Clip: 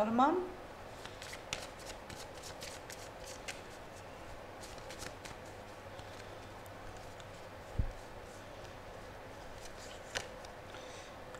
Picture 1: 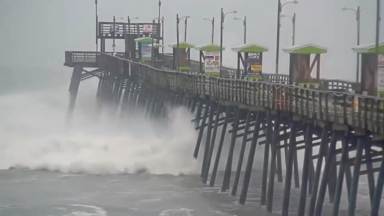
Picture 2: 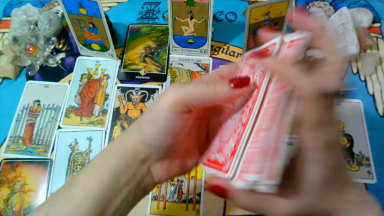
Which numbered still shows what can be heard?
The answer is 2